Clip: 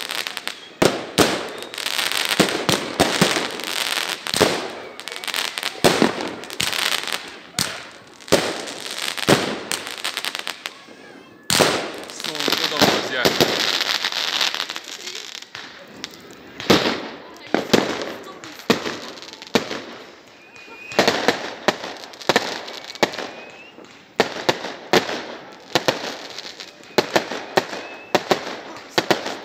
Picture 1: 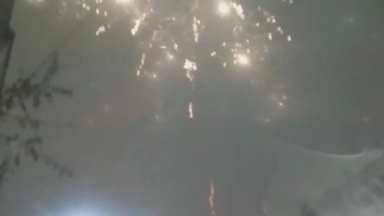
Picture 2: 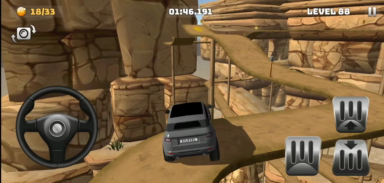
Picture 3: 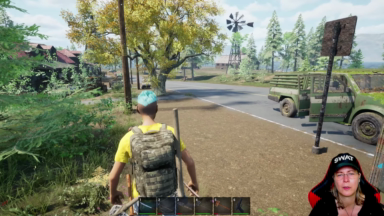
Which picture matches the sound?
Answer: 1